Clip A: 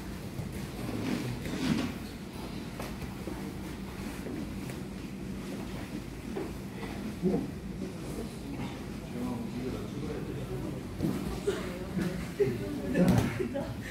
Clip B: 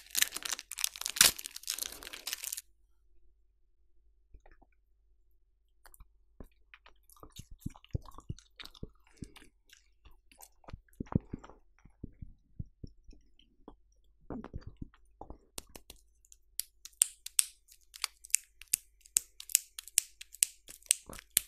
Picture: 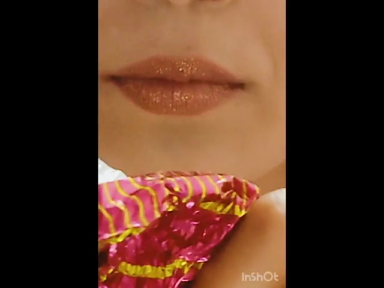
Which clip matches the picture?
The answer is B